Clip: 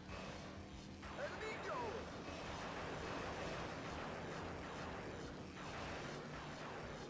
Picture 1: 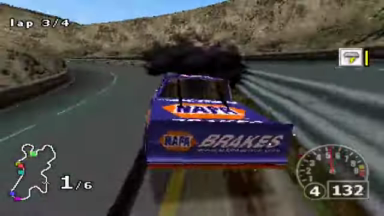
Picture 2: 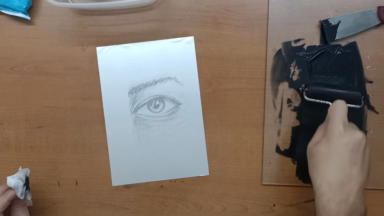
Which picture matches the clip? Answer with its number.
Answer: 1